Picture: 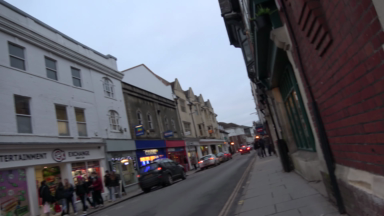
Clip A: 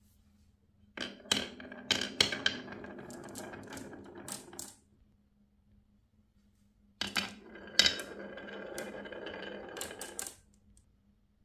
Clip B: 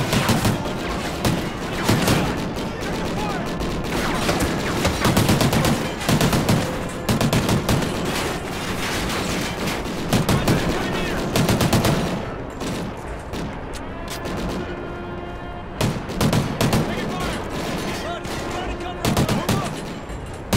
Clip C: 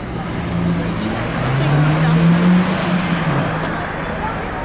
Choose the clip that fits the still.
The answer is C